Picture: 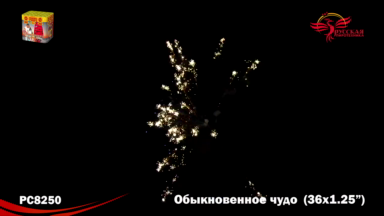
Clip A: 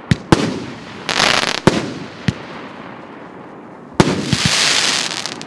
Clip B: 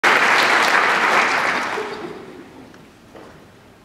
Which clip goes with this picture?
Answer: A